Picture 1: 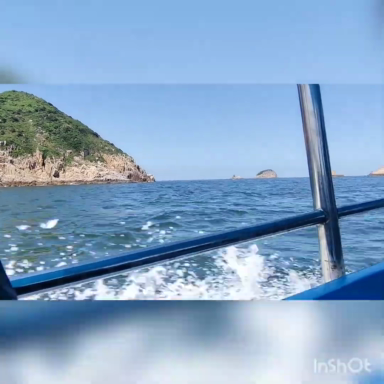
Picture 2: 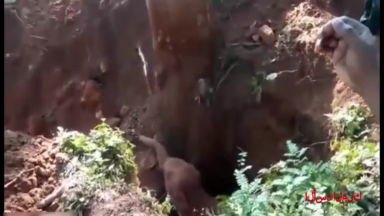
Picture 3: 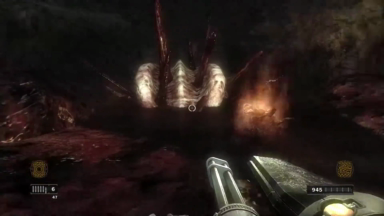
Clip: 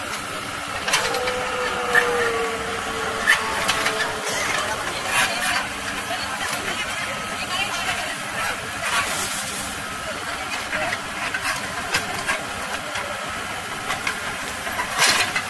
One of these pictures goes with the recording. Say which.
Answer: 2